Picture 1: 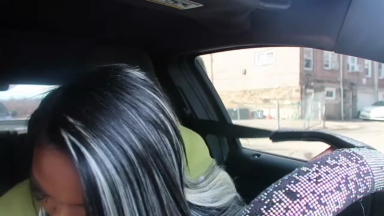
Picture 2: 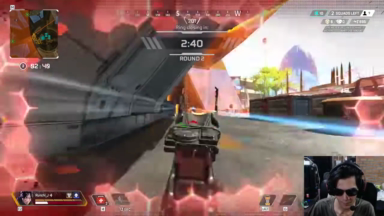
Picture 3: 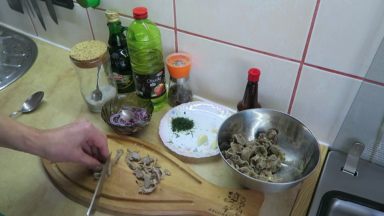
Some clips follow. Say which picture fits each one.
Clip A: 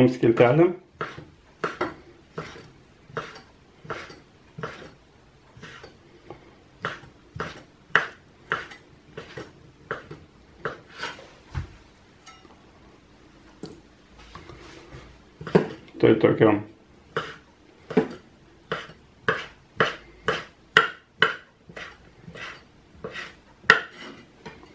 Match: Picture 3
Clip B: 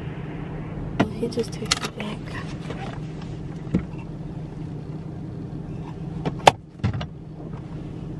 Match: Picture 1